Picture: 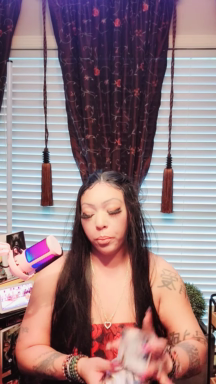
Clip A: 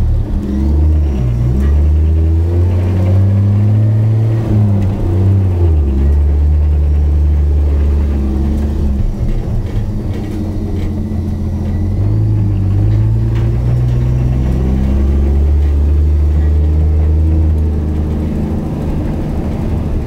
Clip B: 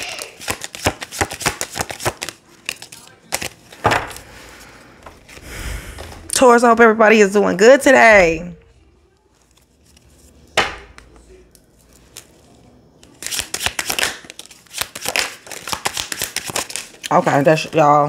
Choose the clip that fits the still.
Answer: B